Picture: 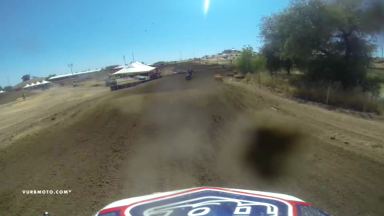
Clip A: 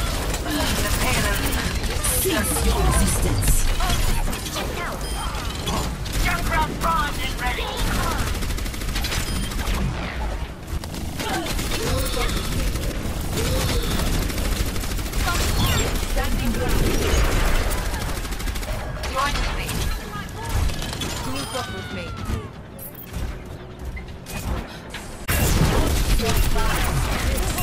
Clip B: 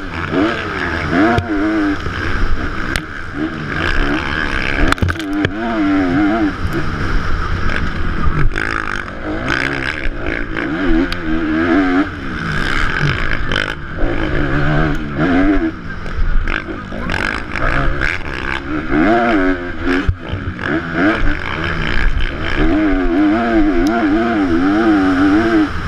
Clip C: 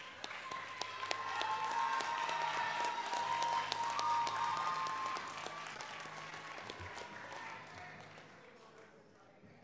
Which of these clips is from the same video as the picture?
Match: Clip B